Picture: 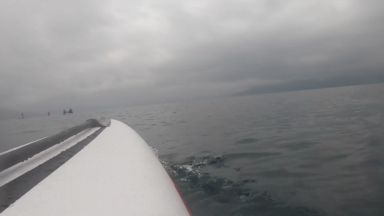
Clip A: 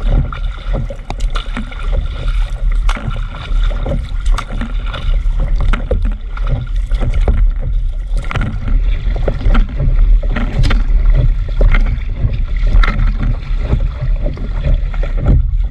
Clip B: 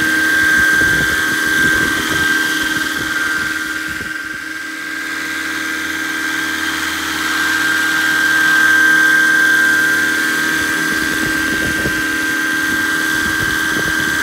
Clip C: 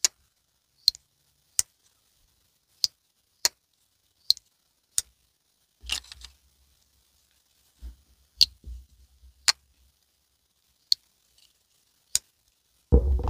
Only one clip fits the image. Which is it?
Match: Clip A